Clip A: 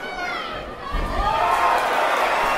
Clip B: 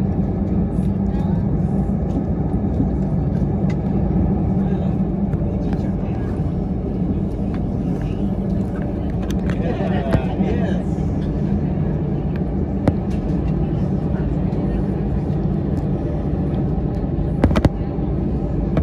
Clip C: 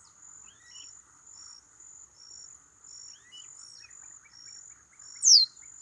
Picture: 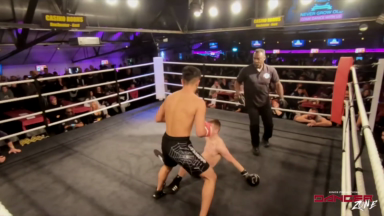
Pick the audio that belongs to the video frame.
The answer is A